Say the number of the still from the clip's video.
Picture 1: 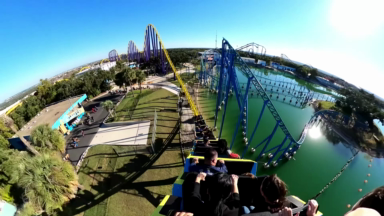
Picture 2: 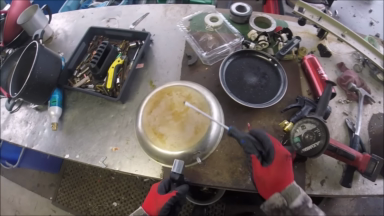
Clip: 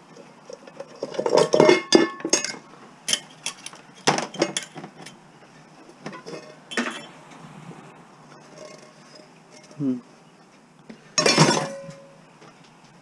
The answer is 2